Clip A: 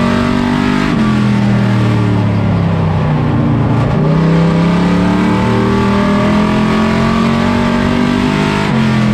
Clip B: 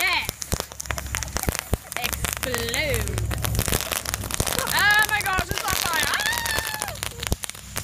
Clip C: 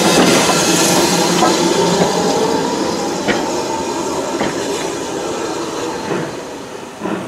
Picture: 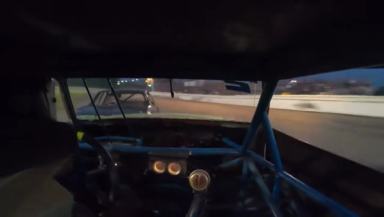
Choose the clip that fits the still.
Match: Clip A